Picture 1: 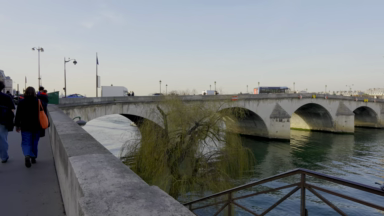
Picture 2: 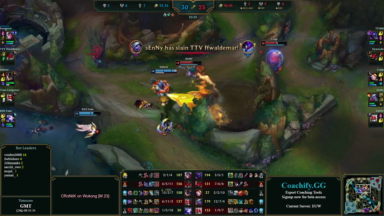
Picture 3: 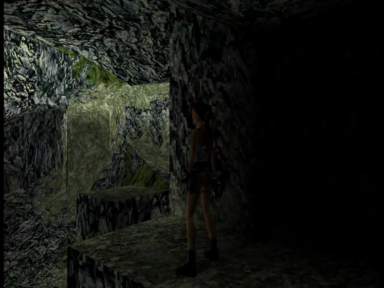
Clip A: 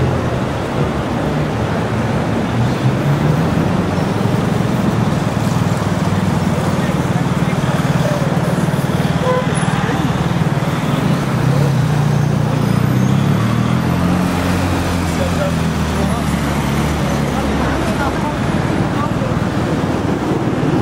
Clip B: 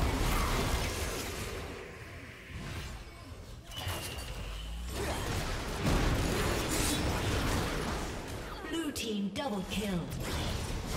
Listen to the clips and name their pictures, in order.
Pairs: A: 1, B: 2